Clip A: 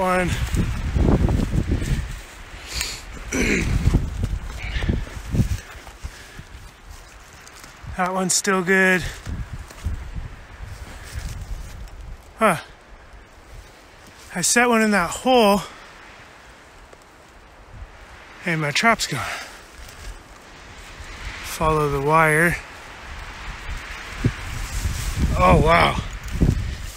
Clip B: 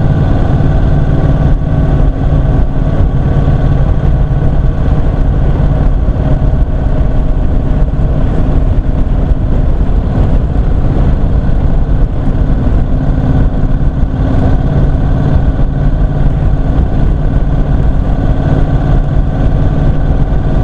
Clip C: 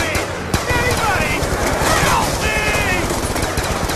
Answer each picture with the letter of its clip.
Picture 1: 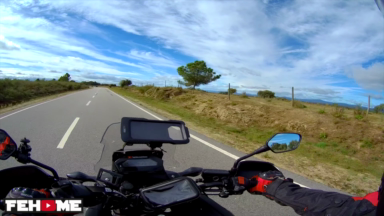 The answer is B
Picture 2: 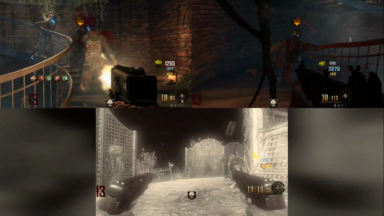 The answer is C